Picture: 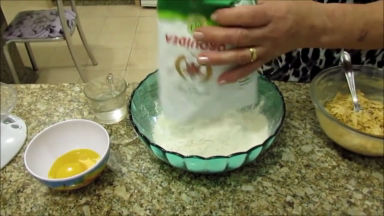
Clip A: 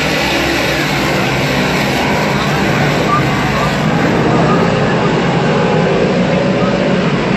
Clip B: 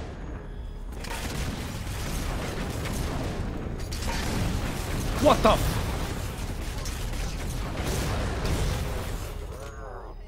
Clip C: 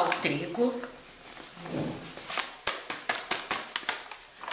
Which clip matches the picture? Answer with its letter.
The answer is C